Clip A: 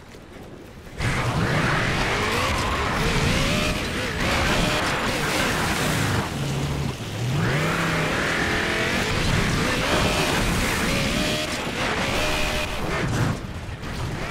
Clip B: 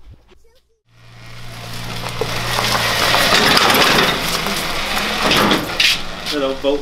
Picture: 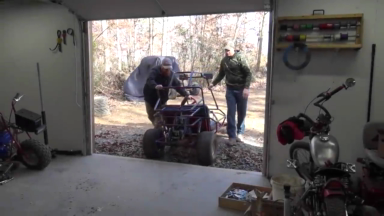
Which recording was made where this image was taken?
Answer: B